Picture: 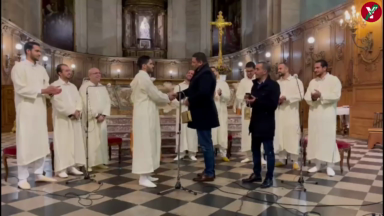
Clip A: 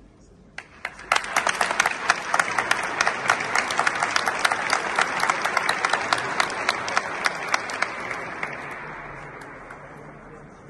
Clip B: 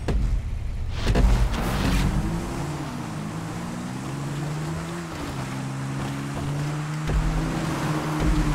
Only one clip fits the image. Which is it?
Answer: A